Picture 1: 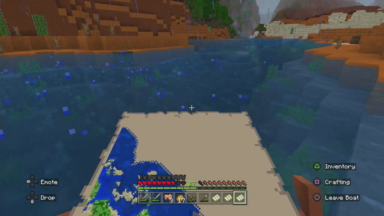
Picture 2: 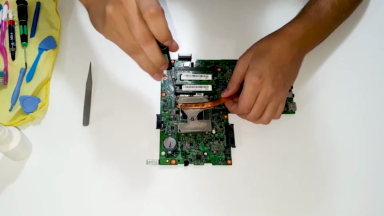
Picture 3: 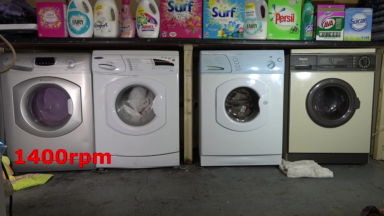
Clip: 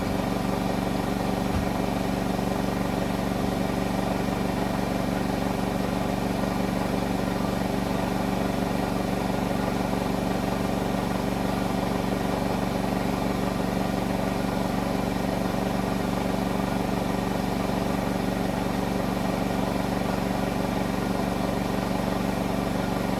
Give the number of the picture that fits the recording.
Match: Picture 3